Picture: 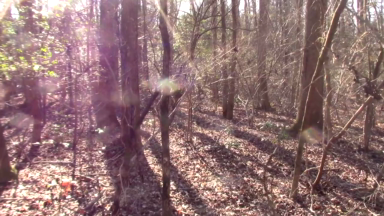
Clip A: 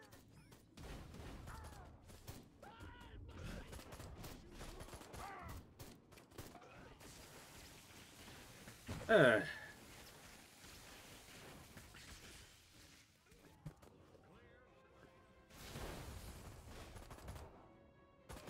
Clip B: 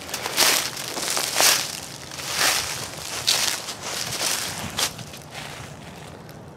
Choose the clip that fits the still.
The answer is B